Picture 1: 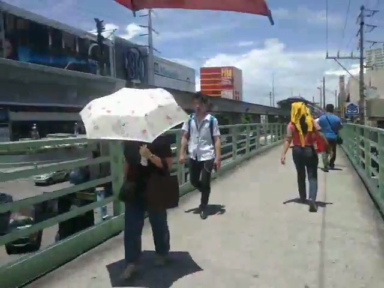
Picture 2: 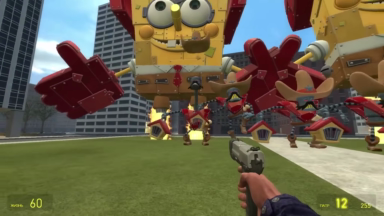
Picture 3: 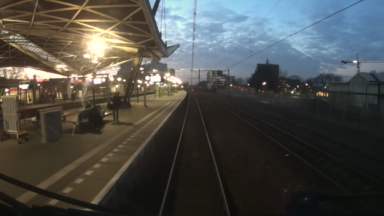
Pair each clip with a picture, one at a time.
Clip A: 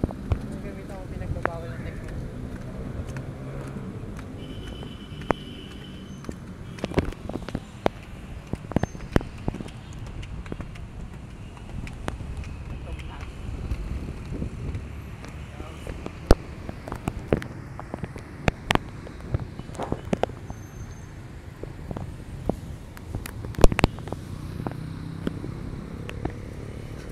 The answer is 1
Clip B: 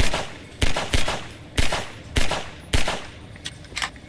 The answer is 2